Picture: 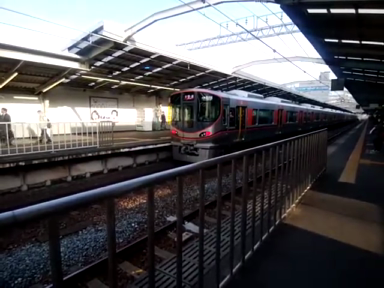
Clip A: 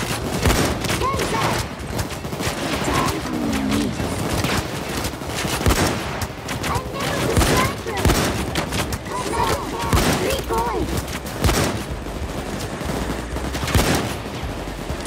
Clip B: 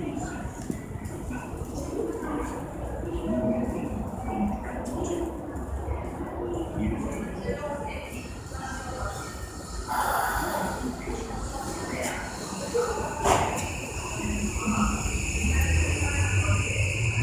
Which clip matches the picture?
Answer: B